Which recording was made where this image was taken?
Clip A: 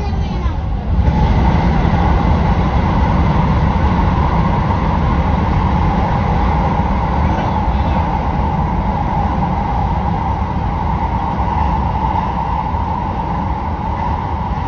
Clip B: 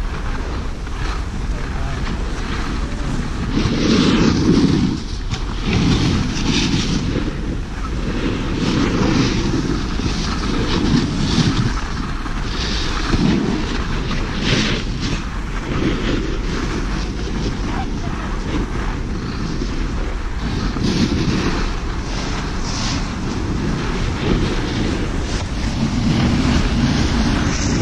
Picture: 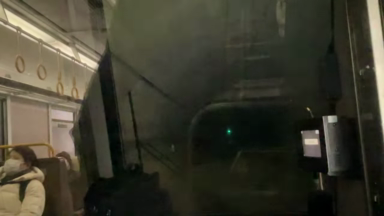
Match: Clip A